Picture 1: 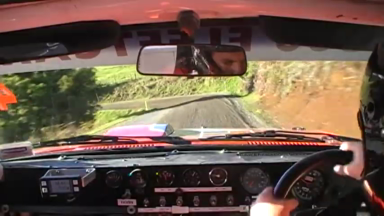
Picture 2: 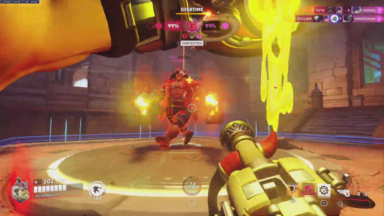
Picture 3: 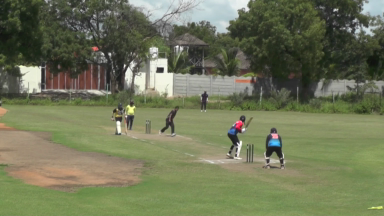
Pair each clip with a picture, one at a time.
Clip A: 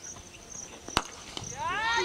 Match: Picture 3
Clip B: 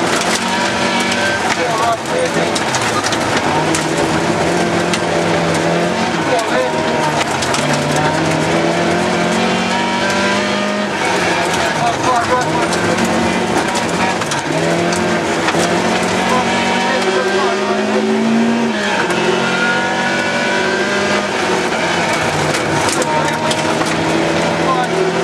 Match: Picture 1